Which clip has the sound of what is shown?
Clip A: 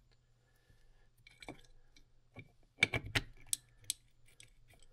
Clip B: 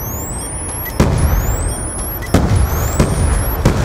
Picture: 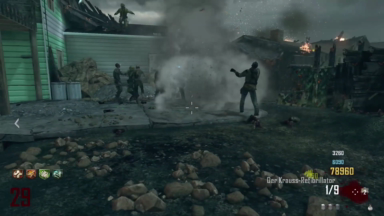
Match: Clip B